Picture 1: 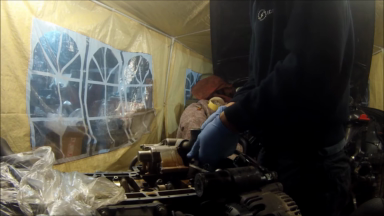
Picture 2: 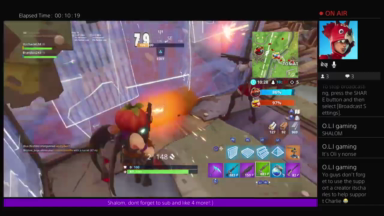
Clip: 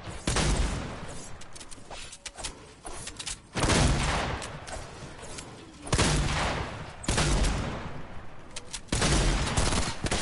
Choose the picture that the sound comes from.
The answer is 2